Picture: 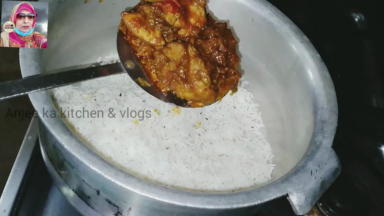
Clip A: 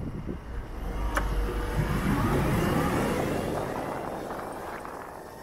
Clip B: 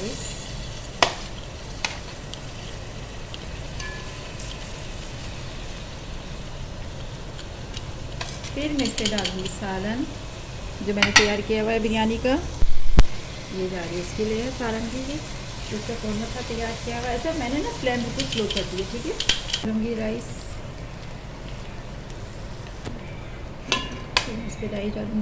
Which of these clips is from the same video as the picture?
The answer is B